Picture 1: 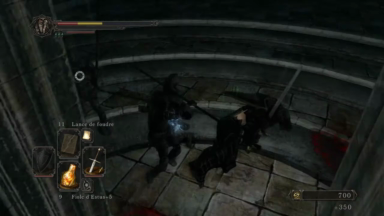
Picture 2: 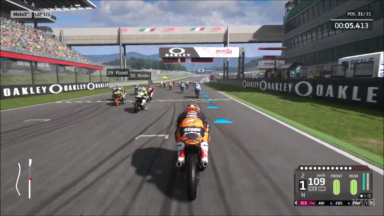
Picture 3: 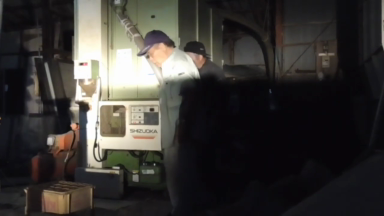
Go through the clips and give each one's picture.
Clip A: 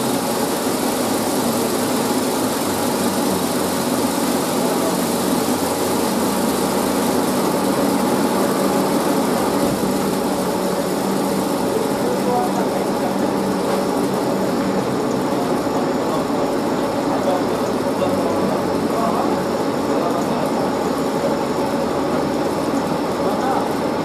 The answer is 3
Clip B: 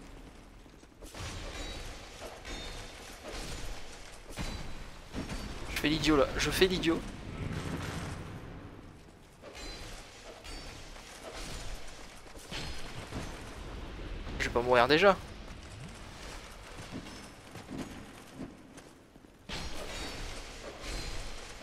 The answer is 1